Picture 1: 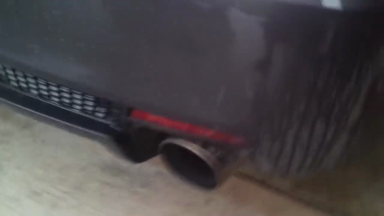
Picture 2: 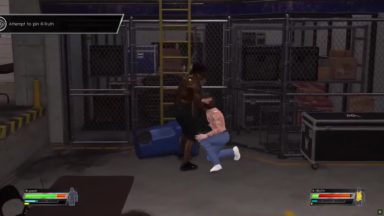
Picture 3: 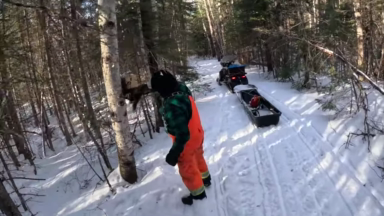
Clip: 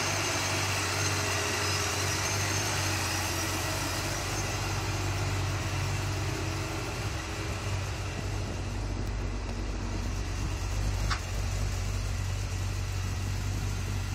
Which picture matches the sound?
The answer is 1